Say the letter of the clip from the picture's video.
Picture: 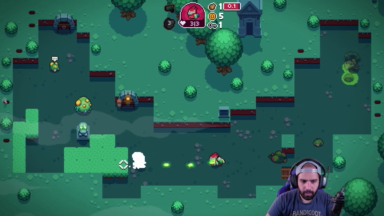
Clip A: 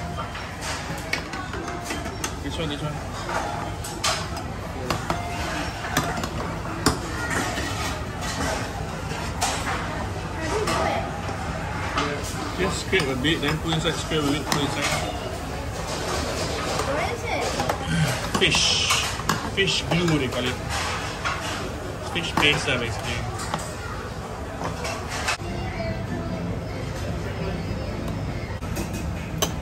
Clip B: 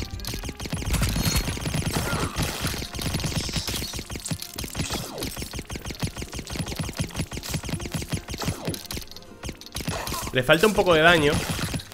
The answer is B